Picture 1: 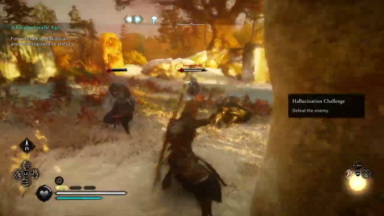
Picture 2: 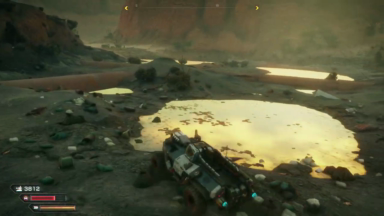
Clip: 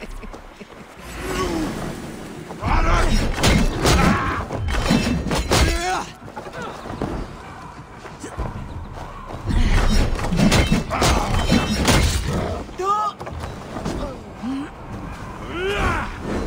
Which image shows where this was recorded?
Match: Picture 1